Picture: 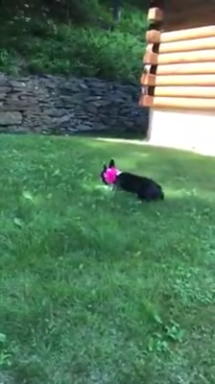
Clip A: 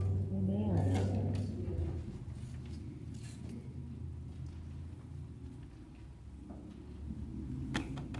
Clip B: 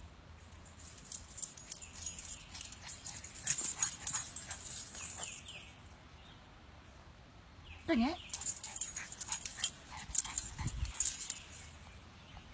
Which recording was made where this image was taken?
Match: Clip B